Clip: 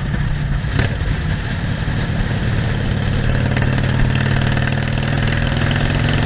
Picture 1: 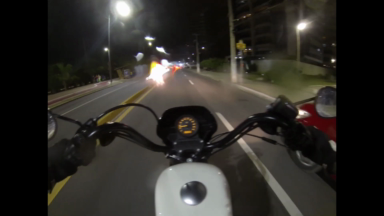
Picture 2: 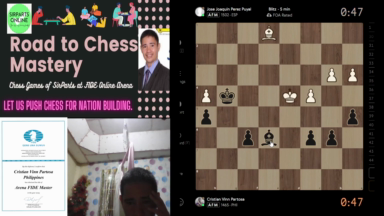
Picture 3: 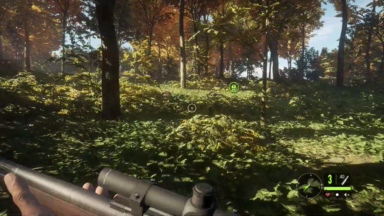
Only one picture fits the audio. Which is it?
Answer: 1